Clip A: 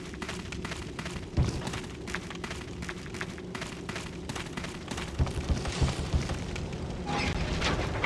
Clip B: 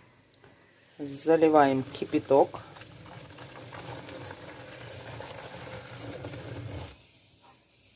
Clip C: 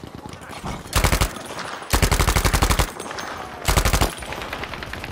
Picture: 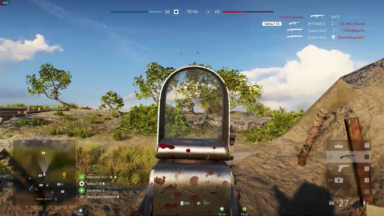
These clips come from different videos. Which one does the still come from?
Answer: C